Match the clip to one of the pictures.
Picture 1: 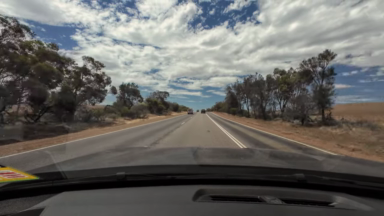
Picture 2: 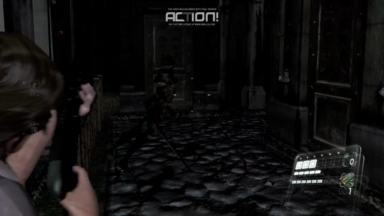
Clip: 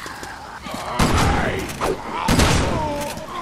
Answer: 2